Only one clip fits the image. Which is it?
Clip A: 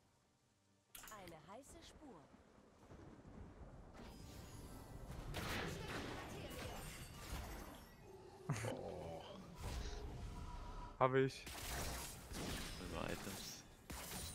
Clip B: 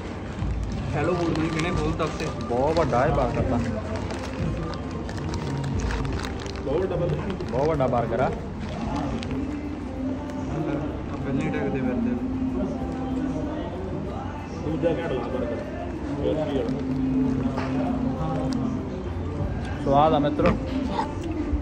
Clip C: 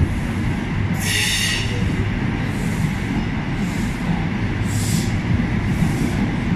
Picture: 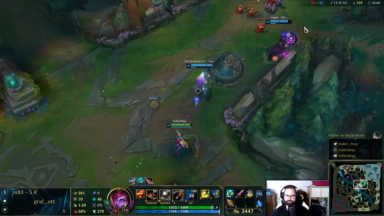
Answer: A